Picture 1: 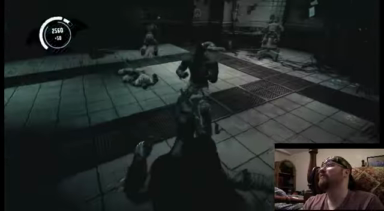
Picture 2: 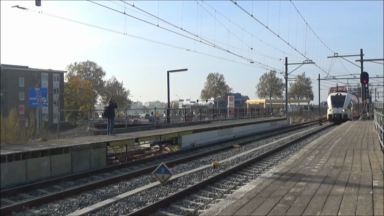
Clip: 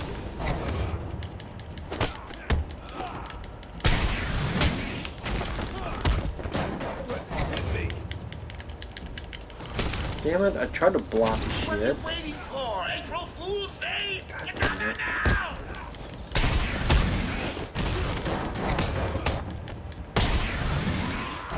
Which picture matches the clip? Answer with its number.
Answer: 1